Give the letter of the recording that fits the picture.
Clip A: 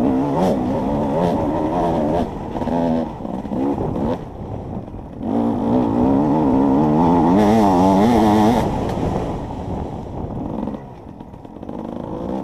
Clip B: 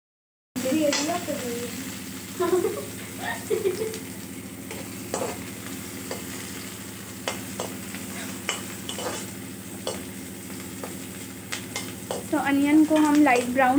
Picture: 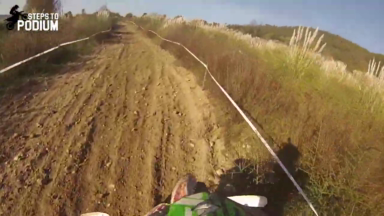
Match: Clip A